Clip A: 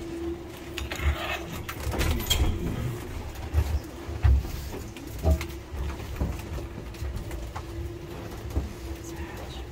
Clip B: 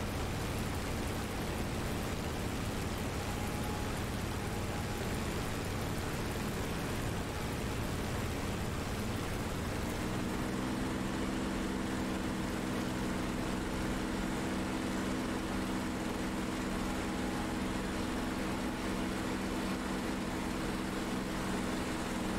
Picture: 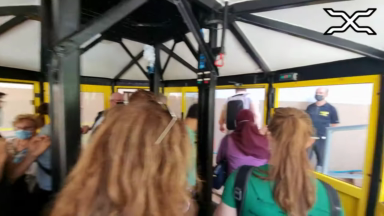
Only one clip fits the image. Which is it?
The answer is A